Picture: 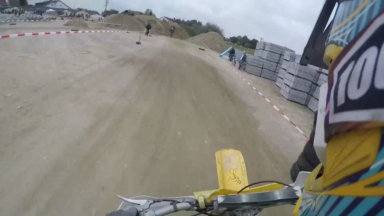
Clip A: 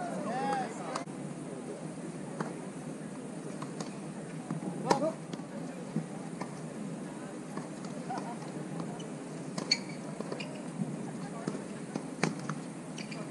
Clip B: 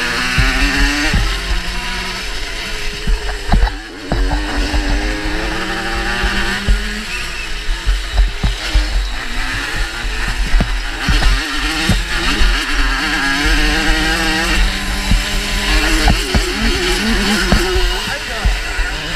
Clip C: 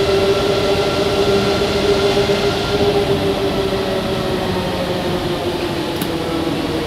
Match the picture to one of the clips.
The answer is B